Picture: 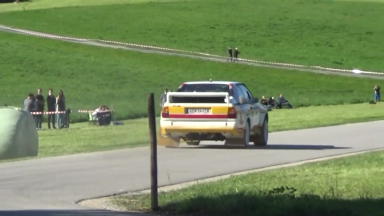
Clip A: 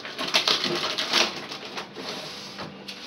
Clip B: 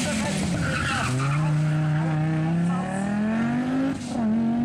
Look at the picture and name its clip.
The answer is B